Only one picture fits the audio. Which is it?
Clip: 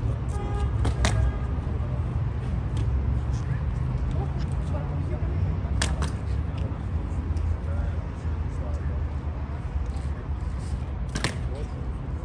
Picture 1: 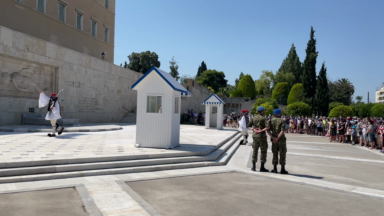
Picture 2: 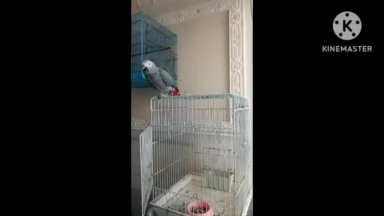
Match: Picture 1